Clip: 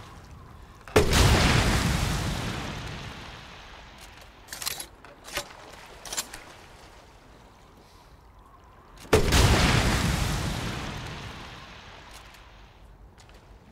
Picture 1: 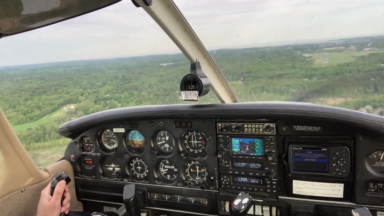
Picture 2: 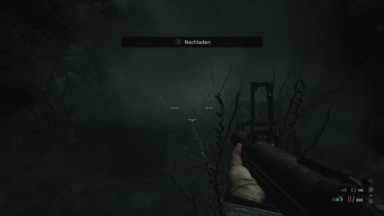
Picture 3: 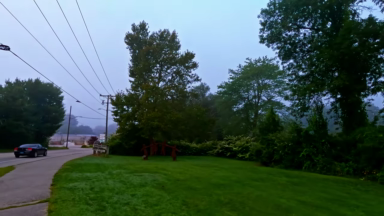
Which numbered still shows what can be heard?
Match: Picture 2